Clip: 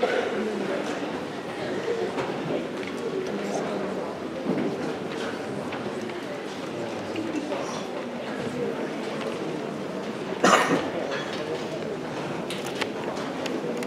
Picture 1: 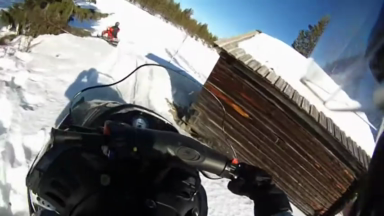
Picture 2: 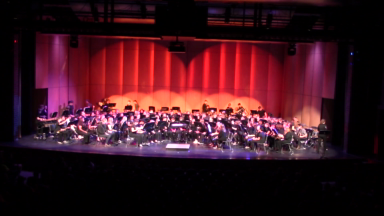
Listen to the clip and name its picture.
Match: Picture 2